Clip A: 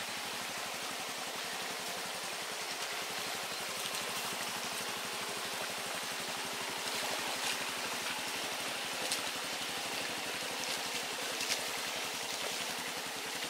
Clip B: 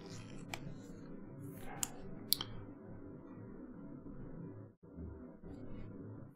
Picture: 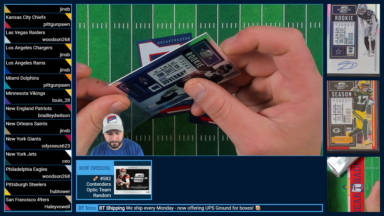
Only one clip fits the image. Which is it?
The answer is B